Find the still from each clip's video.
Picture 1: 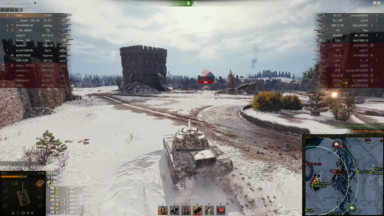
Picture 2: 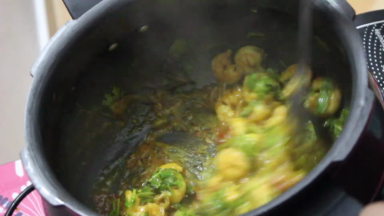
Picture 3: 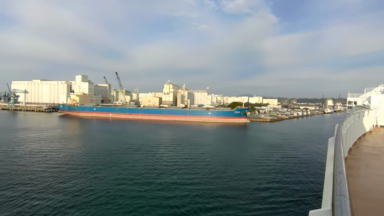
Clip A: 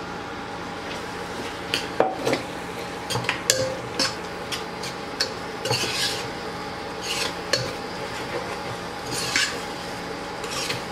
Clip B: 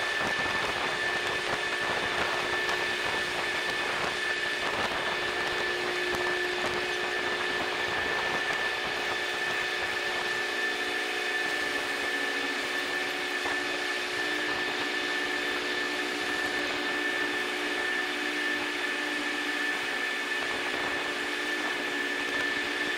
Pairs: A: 2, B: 3